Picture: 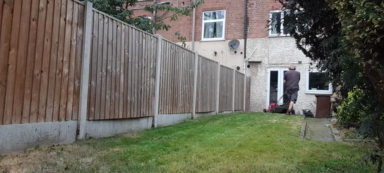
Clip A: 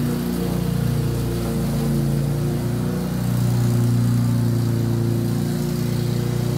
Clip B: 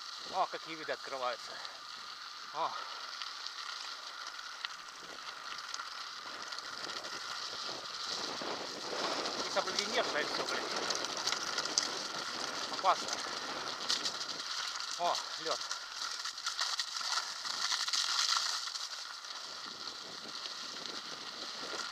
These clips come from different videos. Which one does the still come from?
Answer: A